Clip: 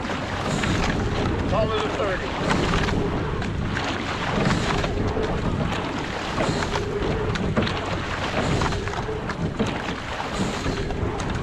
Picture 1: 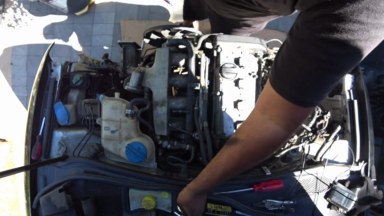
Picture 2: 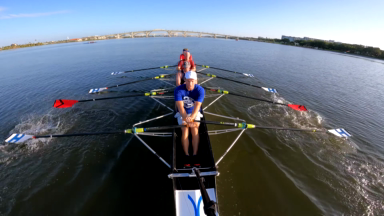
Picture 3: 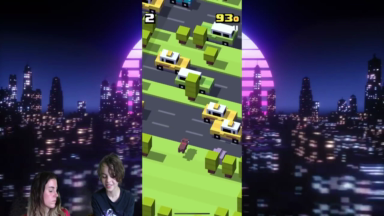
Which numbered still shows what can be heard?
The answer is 2